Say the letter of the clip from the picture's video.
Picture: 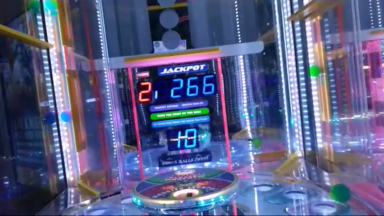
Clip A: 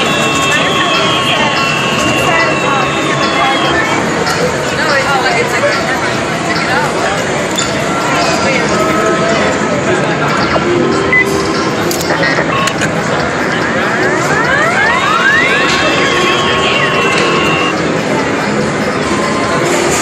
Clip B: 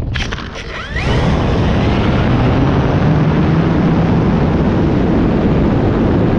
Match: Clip A